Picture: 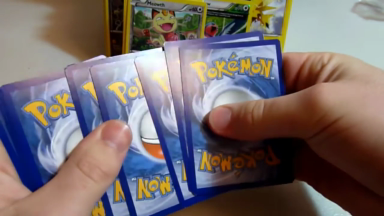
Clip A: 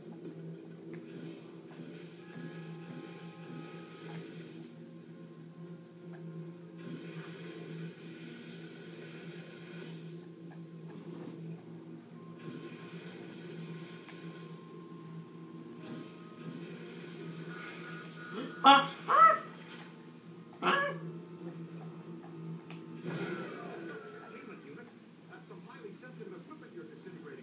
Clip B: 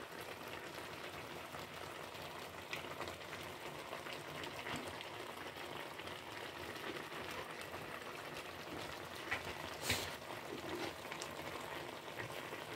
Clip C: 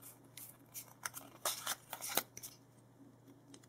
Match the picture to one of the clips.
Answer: C